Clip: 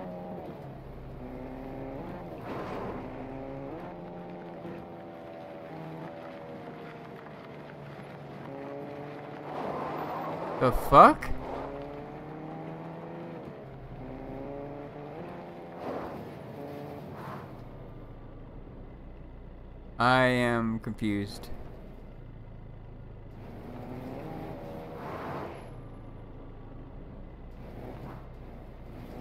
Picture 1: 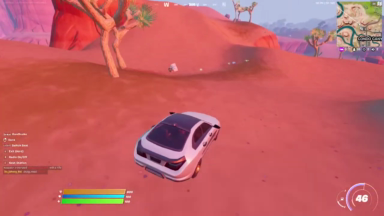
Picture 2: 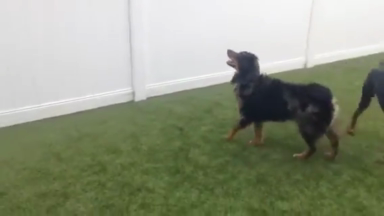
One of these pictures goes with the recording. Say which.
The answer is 1